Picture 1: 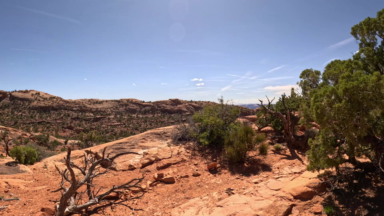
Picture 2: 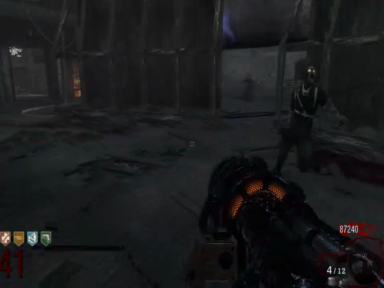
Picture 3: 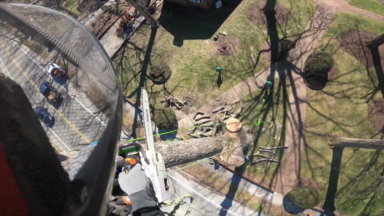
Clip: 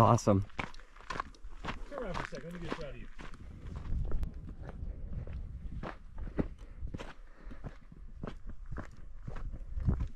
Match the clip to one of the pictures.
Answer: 1